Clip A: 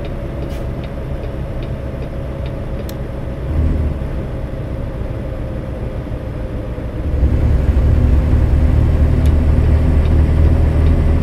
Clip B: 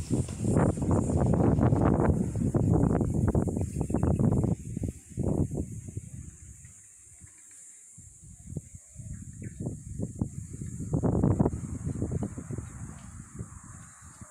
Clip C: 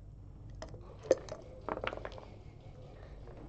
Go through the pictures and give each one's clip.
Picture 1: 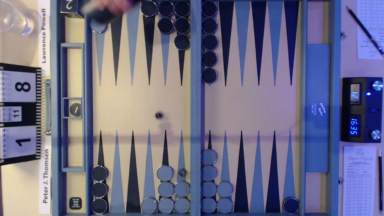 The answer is C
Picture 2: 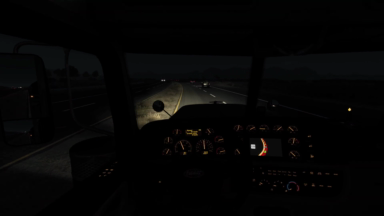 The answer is A